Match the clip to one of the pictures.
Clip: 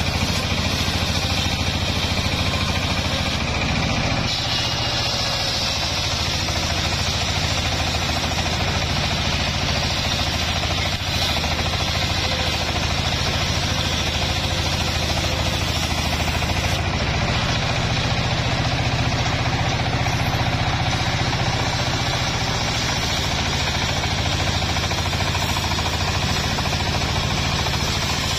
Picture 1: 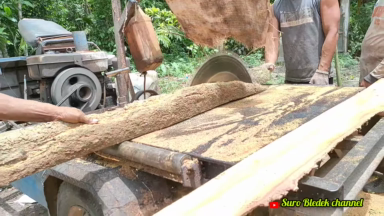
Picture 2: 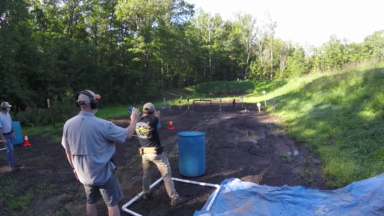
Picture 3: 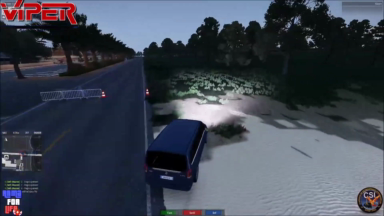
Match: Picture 1